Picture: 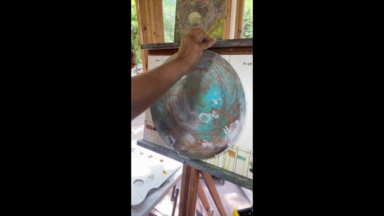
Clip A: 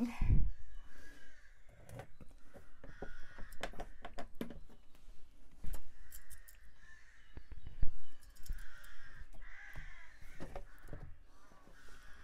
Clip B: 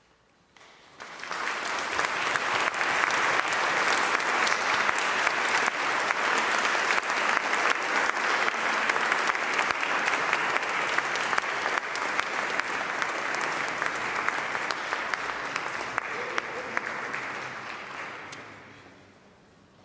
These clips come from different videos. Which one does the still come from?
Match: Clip A